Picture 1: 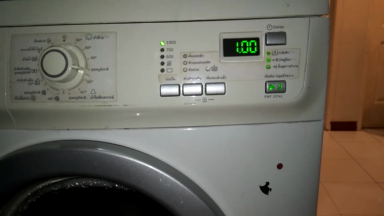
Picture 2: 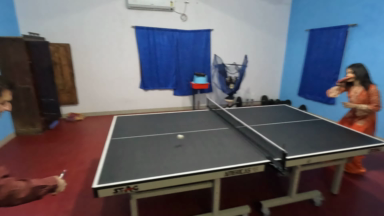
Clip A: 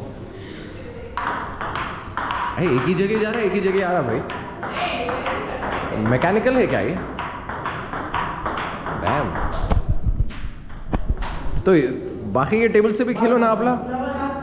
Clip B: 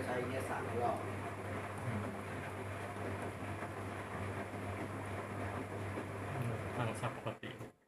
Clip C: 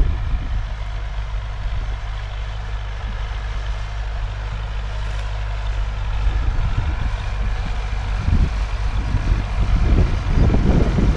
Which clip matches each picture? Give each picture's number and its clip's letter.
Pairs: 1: B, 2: A